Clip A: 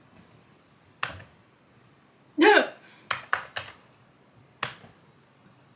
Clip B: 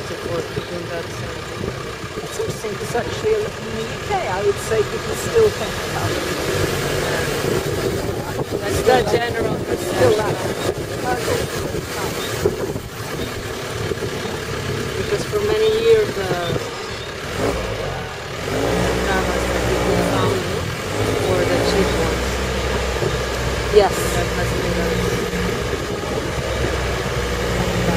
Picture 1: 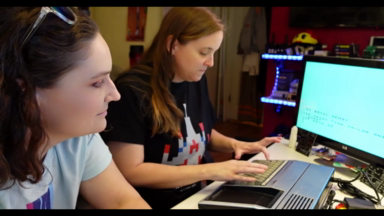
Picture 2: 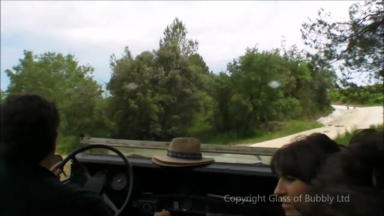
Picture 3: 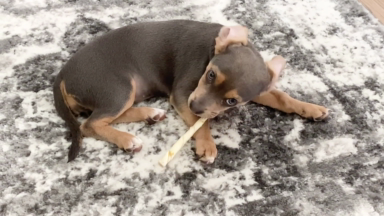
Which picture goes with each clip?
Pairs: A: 1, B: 2